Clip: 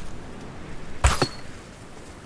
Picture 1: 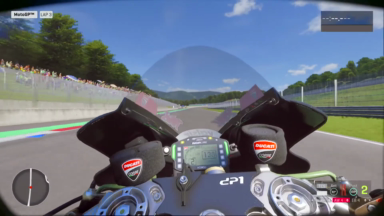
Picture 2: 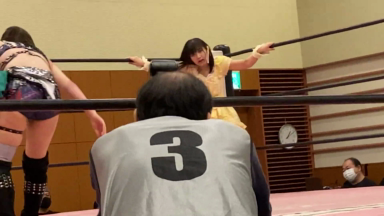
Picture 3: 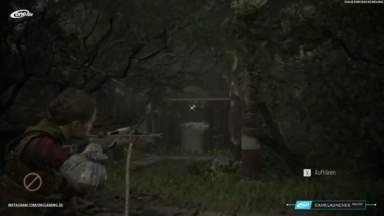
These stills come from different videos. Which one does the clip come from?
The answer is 3